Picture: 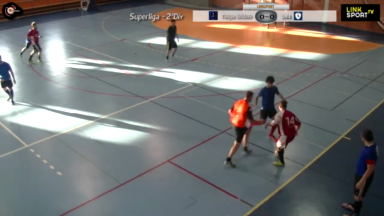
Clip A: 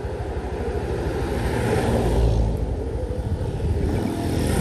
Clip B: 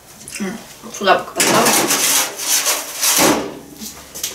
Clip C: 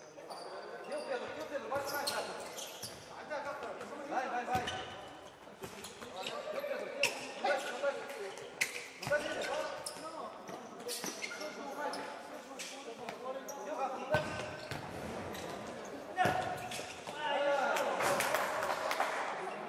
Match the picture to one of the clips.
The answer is C